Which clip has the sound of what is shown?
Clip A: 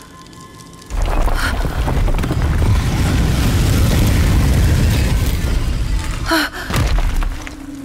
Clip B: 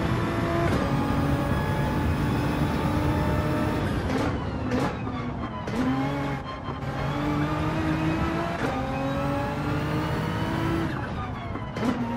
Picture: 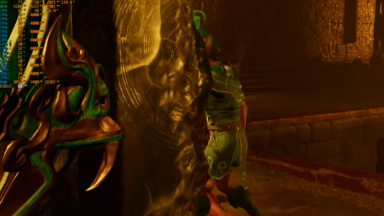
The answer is A